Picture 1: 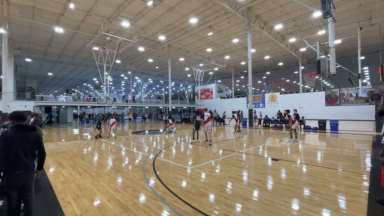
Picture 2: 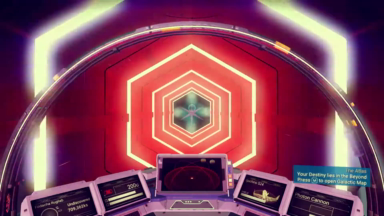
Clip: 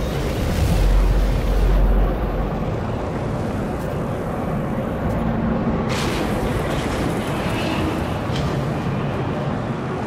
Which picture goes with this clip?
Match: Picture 2